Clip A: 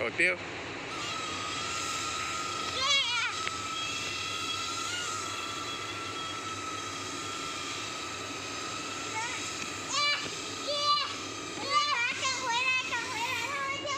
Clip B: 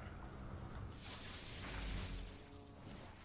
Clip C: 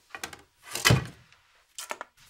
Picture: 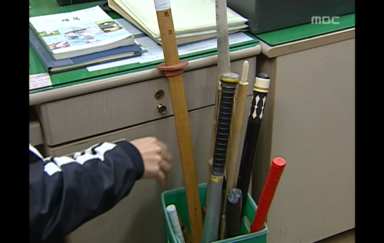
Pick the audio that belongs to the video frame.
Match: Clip C